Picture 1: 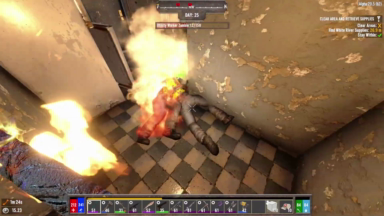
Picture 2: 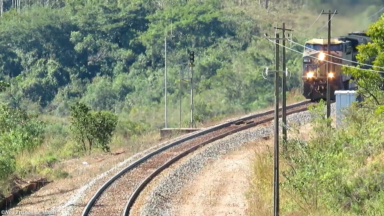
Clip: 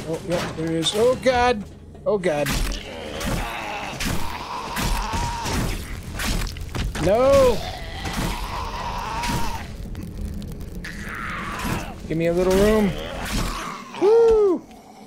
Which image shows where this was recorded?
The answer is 1